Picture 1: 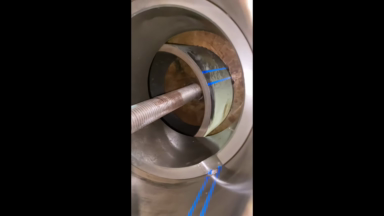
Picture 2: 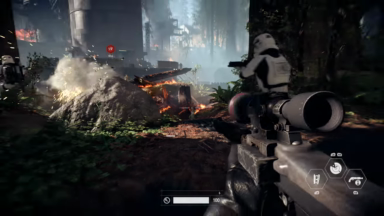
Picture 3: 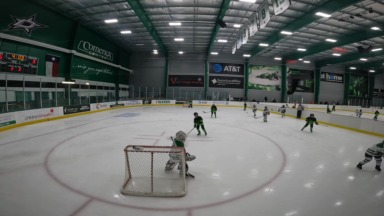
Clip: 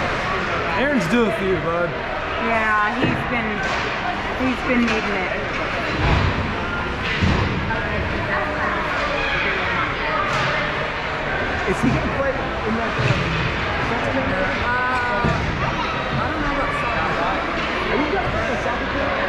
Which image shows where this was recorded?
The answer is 3